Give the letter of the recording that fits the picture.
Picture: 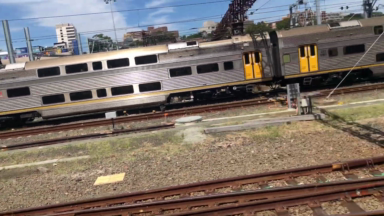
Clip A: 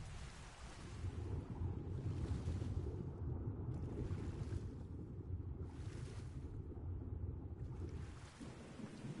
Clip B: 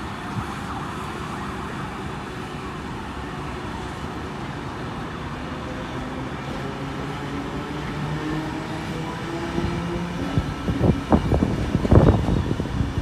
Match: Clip B